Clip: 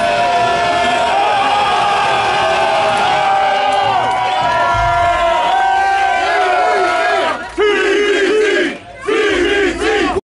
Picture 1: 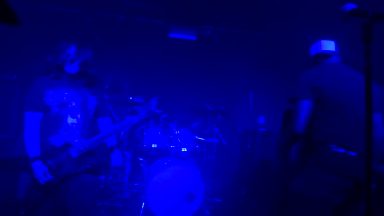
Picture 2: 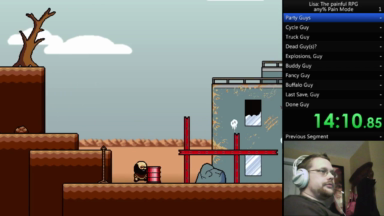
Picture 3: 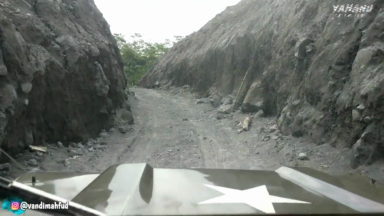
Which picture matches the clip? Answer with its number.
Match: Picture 1